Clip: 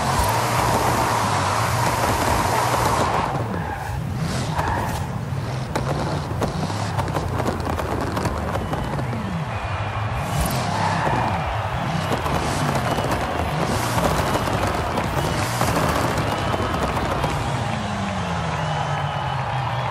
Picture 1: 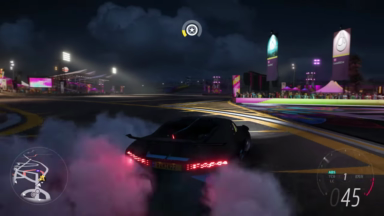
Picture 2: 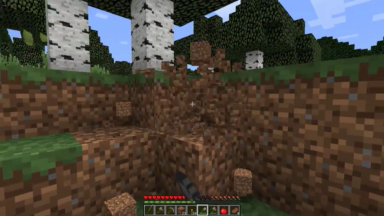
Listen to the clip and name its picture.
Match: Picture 1